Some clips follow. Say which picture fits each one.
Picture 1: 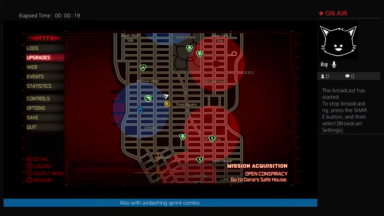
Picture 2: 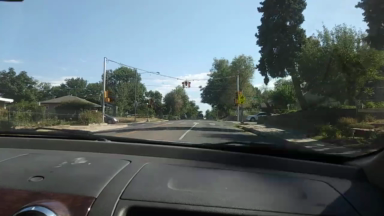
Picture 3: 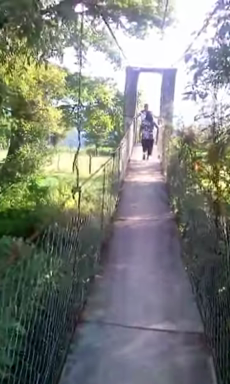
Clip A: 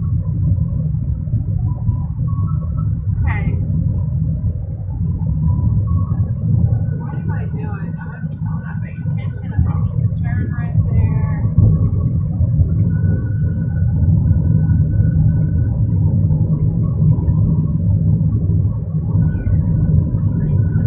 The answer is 2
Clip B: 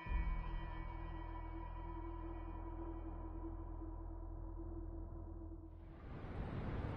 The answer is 1